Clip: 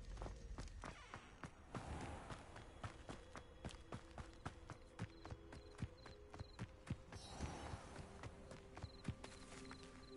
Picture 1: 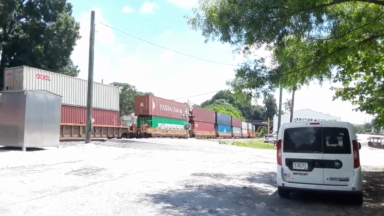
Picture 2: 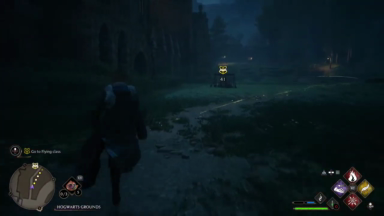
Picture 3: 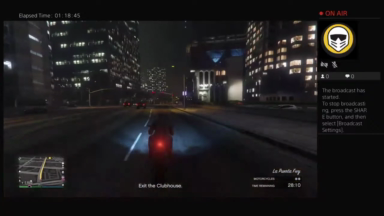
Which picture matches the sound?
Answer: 2